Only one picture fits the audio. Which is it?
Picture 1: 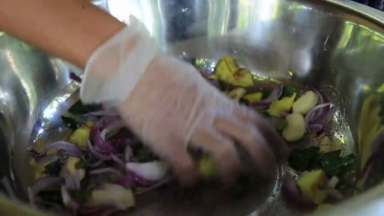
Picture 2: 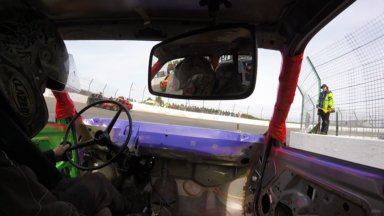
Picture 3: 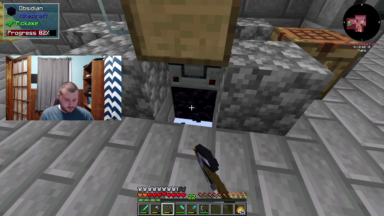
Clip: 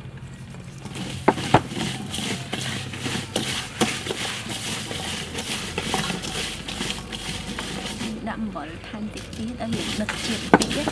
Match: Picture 1